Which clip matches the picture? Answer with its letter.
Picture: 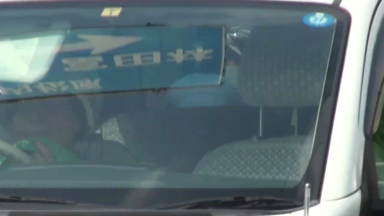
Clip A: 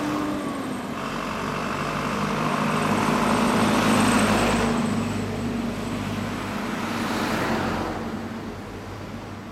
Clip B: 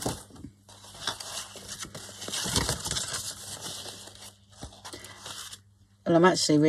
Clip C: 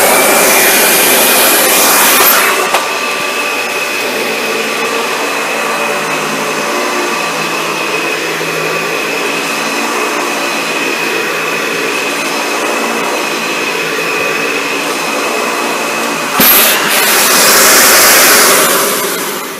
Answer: A